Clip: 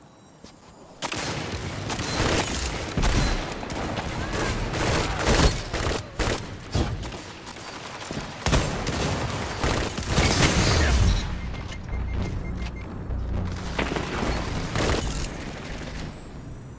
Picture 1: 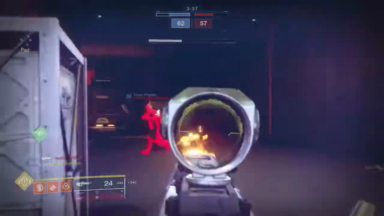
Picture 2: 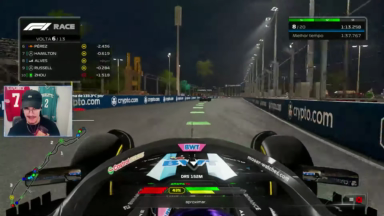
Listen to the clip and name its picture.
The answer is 1